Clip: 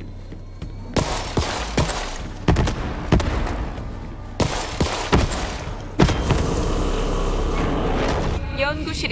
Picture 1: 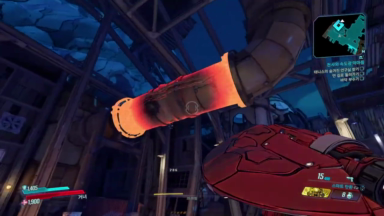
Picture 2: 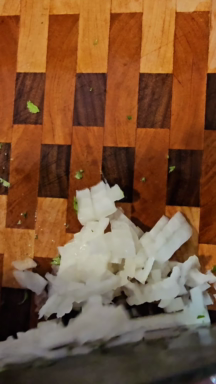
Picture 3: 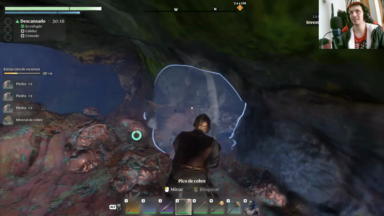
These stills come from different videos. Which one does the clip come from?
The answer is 1